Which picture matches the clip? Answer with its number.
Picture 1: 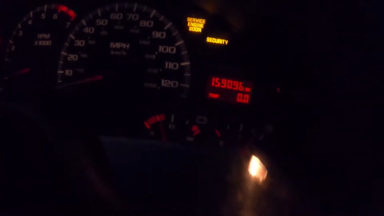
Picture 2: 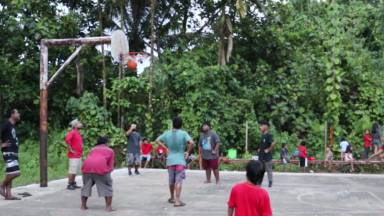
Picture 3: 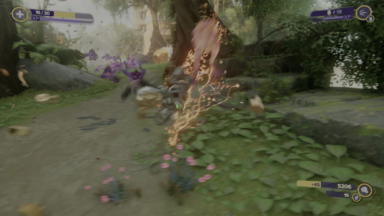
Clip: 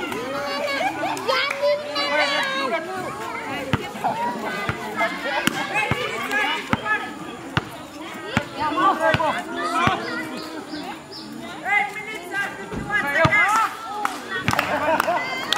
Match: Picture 2